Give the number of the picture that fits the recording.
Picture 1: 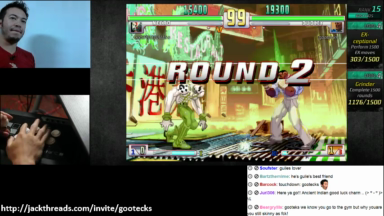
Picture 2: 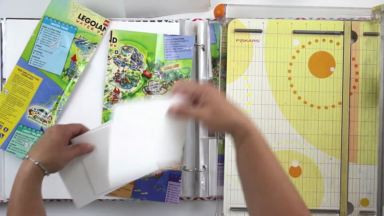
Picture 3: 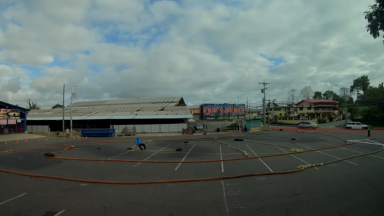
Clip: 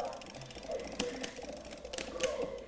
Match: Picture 1